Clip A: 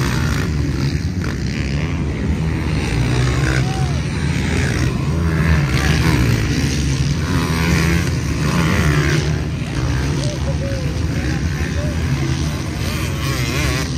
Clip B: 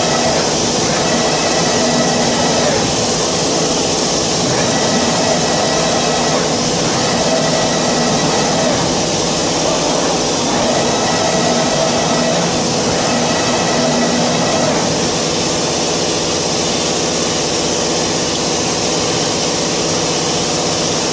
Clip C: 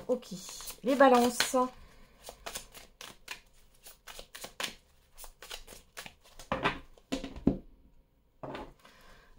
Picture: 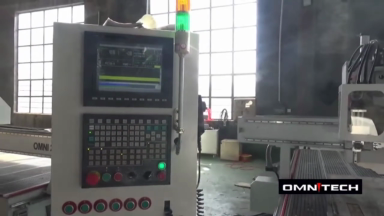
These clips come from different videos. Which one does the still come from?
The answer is B